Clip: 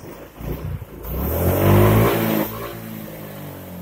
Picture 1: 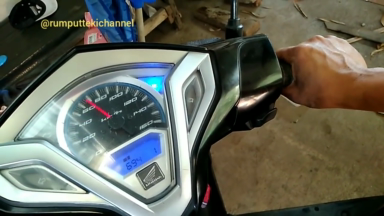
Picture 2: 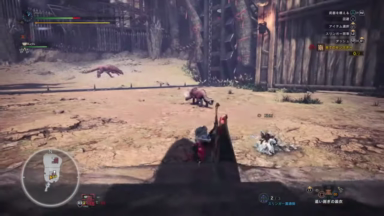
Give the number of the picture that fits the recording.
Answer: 1